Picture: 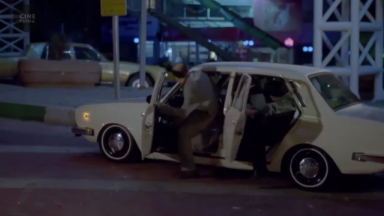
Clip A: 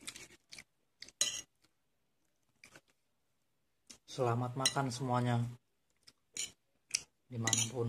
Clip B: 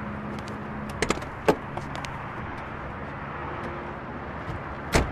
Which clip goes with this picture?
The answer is B